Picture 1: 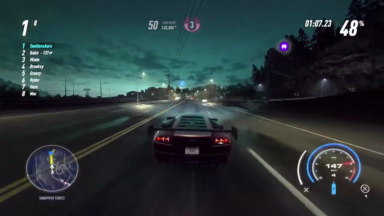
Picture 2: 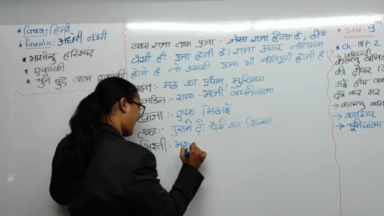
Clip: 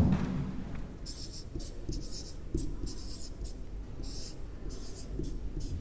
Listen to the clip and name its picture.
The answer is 2